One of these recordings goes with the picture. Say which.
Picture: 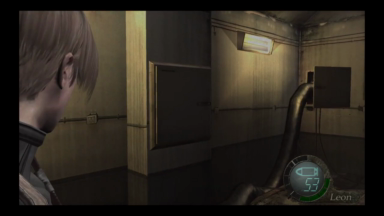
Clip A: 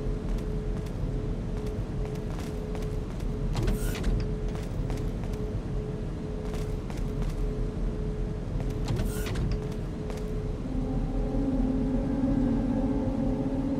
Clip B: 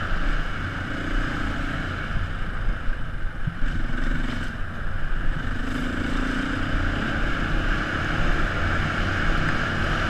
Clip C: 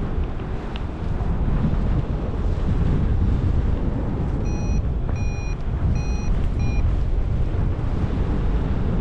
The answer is A